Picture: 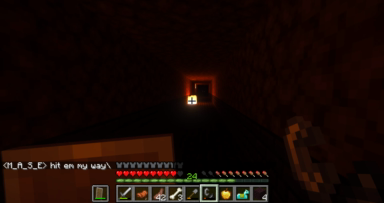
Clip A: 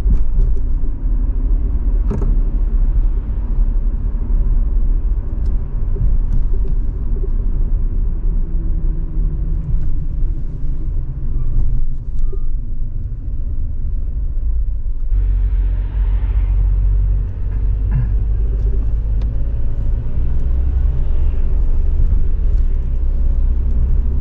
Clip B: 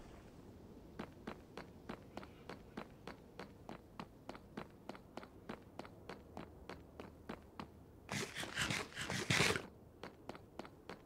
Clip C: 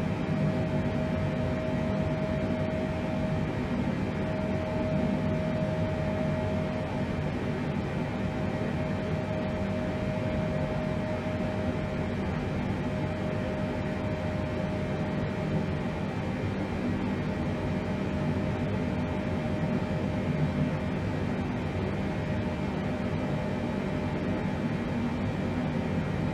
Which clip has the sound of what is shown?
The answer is B